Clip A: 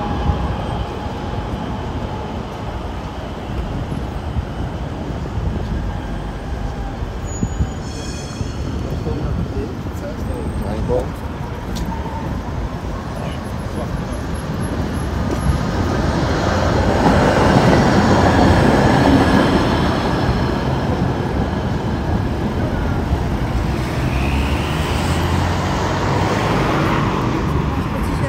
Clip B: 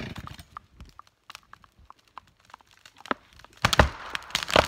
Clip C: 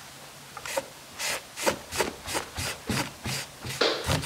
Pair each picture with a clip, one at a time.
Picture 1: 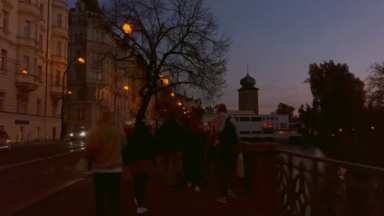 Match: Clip A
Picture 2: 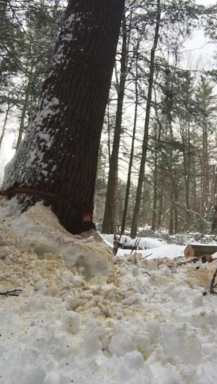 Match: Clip B